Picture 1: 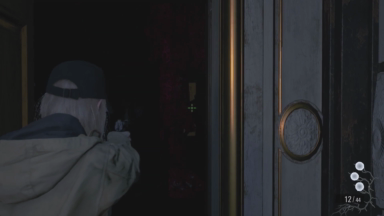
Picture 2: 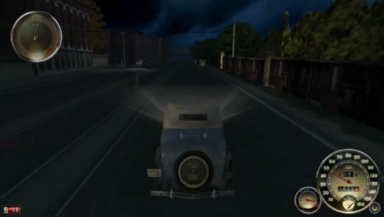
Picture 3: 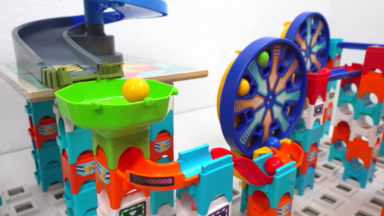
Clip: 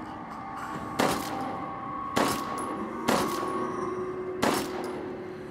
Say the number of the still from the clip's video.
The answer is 1